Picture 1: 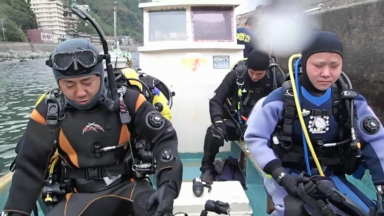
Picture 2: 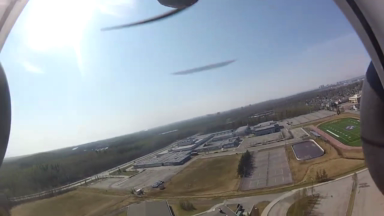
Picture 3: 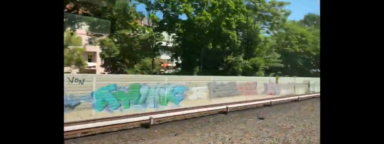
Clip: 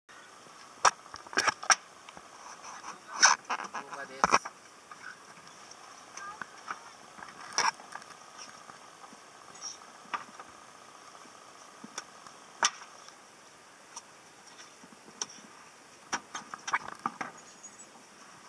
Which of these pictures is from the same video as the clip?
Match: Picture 1